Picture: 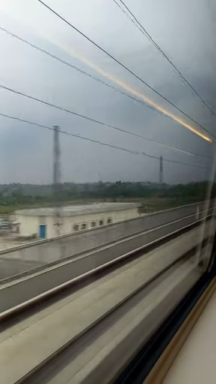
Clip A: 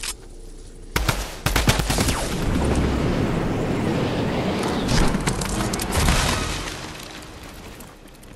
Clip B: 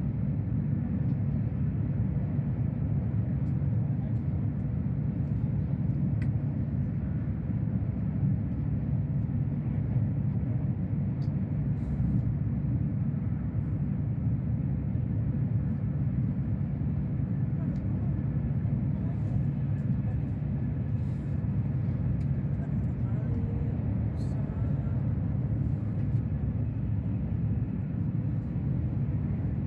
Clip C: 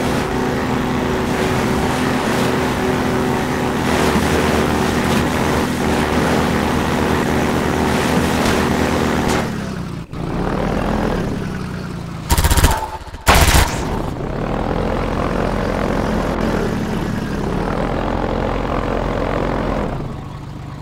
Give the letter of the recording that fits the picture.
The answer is B